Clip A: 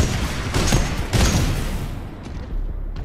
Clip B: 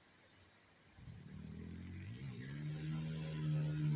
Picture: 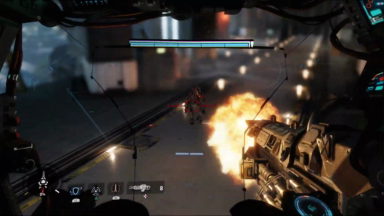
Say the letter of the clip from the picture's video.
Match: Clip A